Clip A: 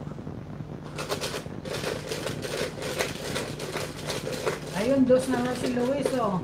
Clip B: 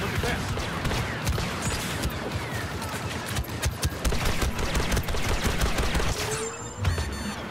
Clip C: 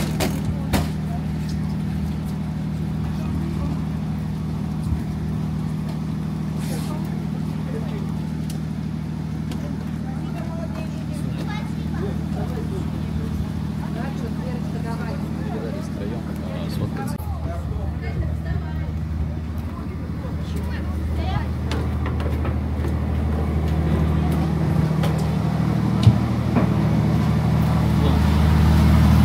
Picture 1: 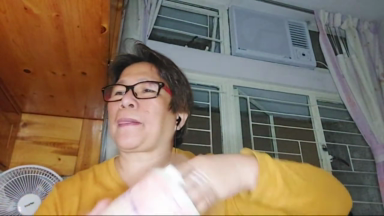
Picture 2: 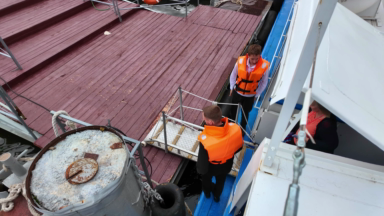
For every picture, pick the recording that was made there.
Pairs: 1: A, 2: C